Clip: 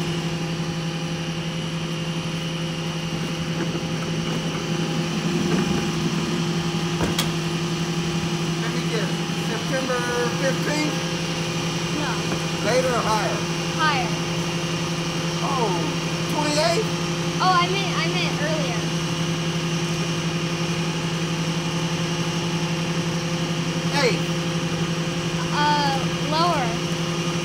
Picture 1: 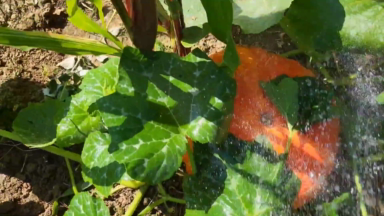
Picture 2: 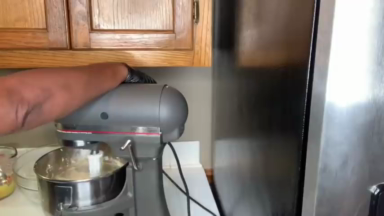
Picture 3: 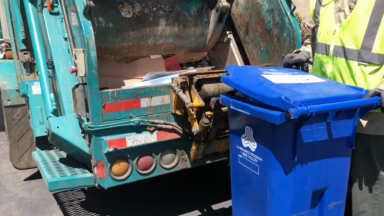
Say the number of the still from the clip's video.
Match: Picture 3